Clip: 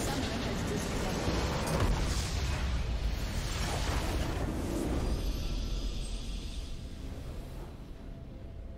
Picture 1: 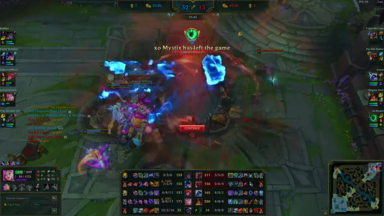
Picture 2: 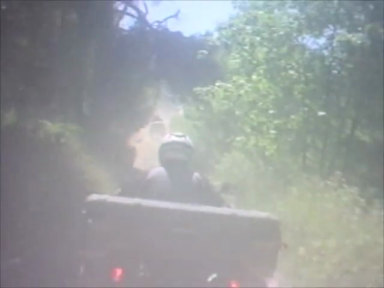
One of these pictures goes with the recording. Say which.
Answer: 1